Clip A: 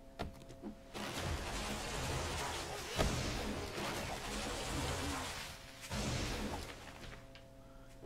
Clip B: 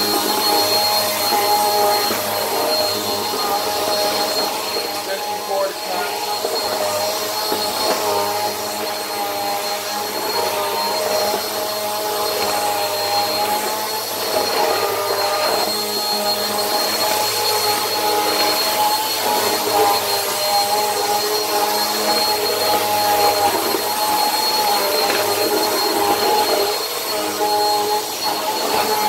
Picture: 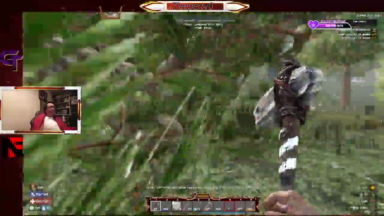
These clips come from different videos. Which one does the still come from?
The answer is A